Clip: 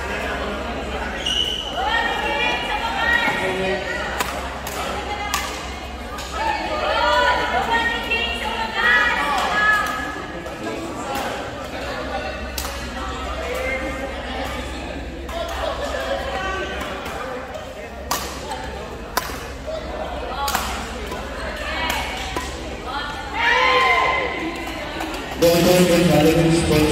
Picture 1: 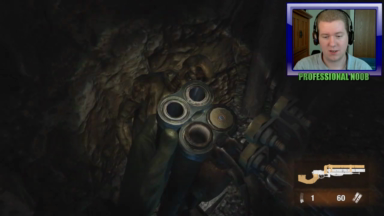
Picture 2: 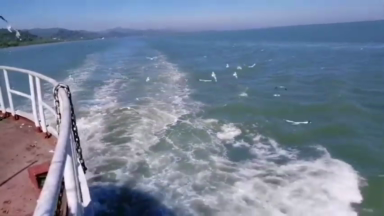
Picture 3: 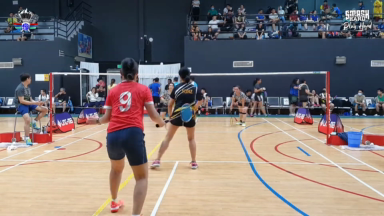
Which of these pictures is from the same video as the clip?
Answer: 3